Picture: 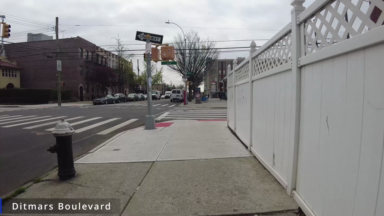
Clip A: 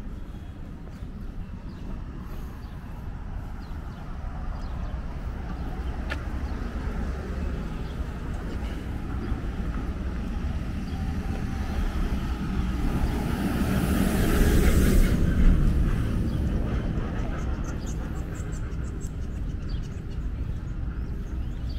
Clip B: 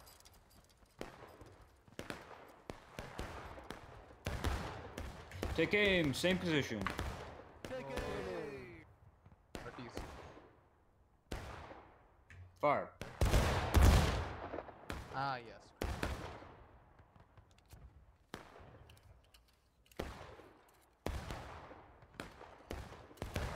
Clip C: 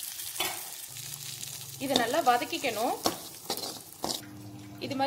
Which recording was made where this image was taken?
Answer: A